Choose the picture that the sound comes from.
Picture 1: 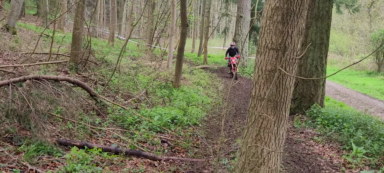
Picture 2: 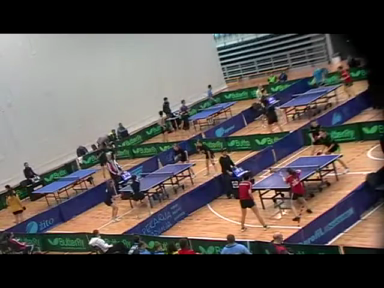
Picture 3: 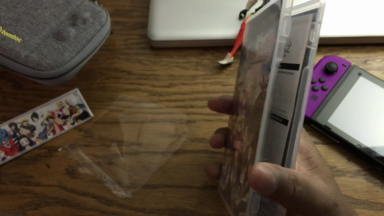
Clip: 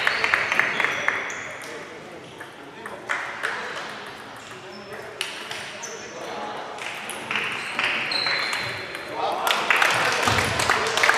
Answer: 2